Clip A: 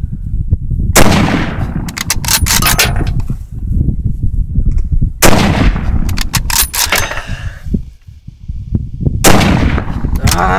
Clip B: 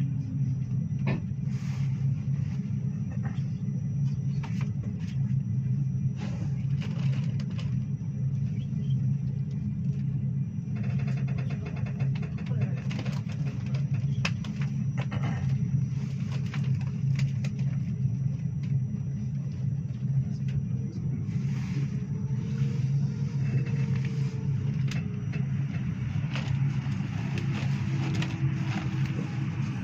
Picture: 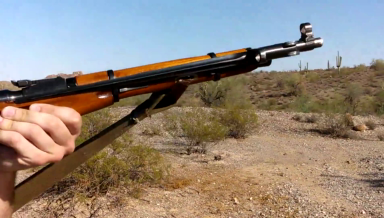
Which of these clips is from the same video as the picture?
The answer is A